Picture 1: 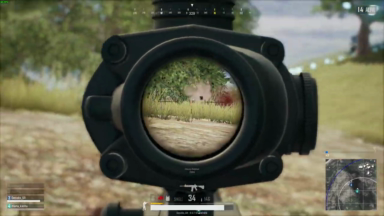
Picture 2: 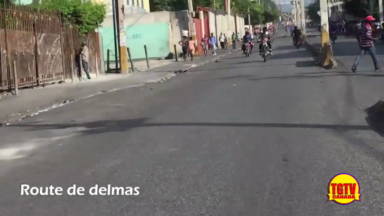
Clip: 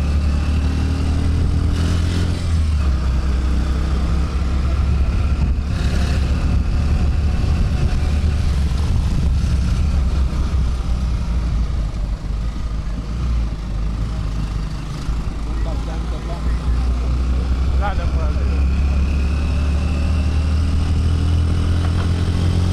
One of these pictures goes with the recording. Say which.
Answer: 2